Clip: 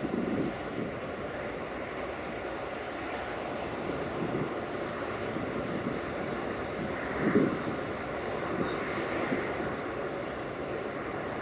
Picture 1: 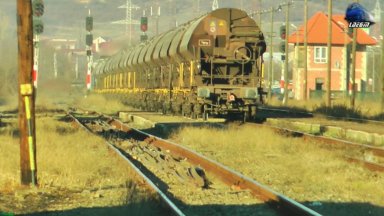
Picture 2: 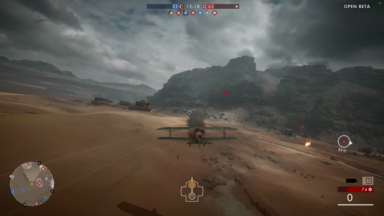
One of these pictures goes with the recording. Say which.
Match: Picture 1